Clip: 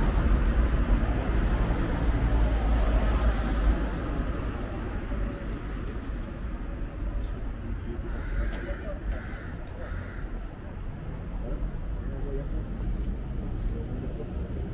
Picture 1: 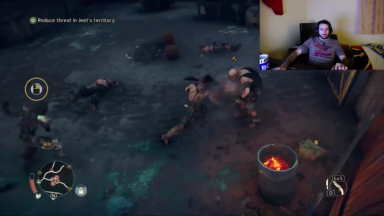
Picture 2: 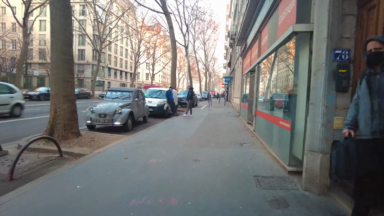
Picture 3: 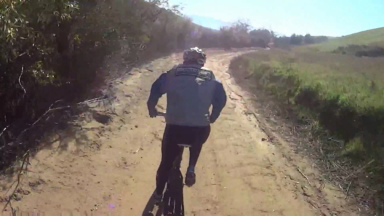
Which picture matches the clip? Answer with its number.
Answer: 2